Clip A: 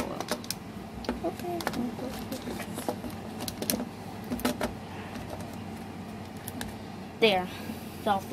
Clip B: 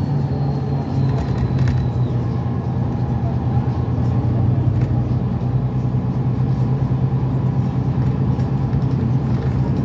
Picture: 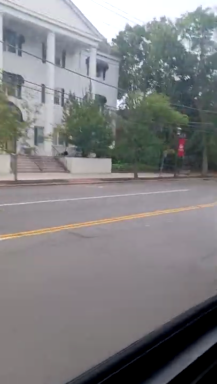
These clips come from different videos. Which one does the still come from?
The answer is B